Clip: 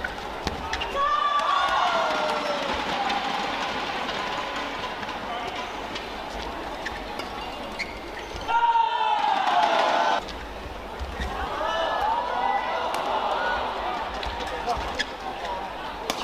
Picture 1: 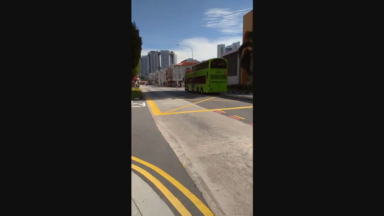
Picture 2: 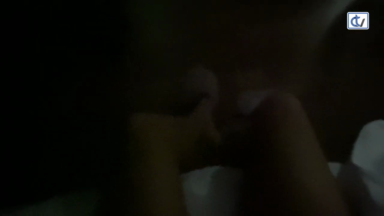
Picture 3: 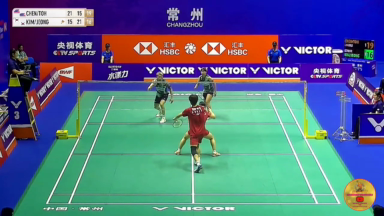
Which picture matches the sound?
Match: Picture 3